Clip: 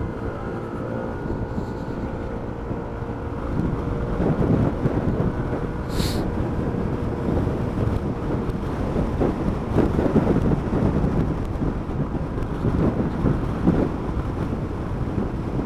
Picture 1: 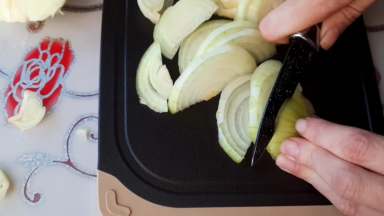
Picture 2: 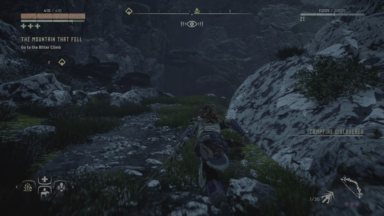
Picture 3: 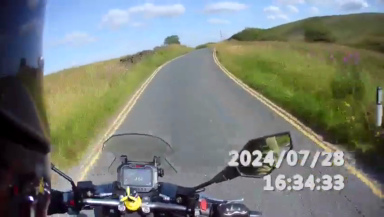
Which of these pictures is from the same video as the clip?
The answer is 3